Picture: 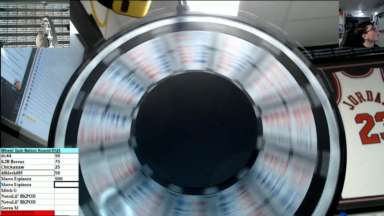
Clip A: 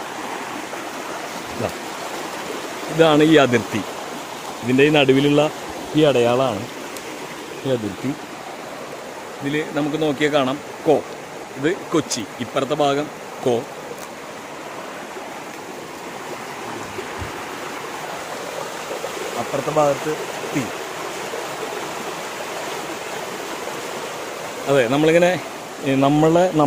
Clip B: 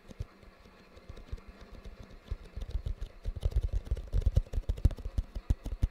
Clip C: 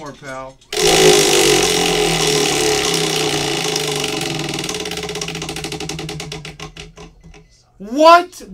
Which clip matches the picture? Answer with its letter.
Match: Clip C